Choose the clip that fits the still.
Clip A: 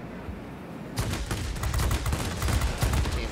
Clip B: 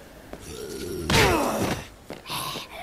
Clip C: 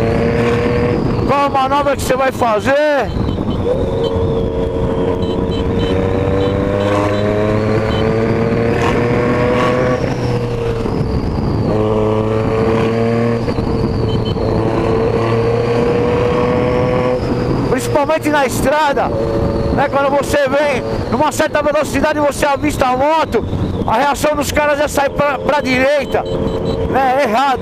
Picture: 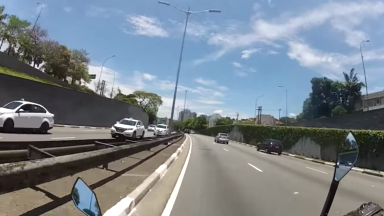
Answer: C